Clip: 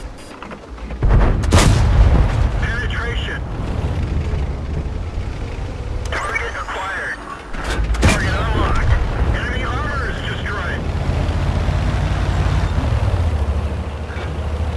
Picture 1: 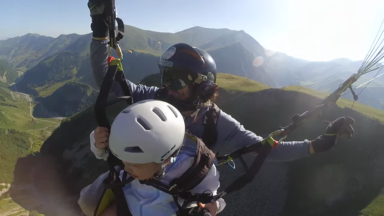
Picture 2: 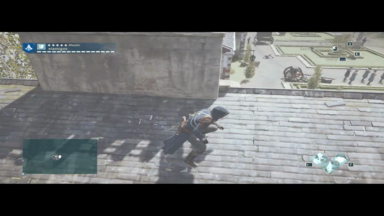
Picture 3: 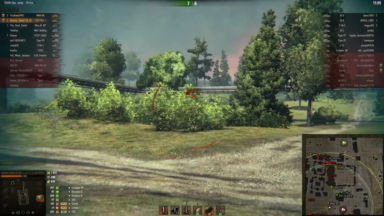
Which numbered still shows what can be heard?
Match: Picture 3